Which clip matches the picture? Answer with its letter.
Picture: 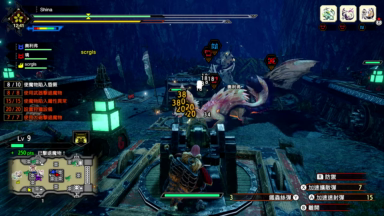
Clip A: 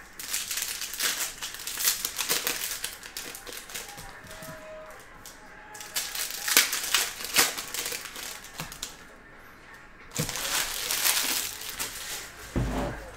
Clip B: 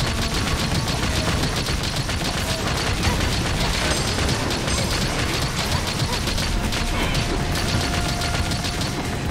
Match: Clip B